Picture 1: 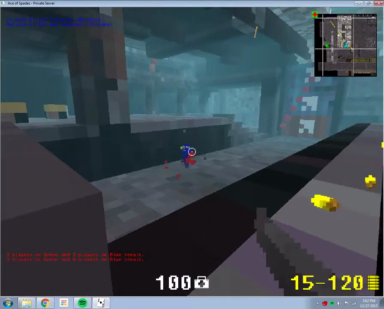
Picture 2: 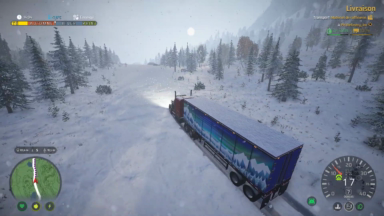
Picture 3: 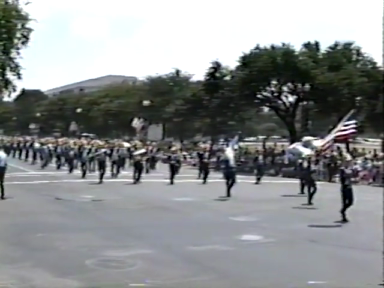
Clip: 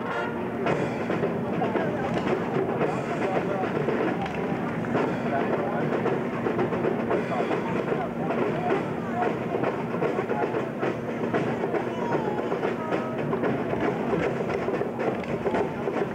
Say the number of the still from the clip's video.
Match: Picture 3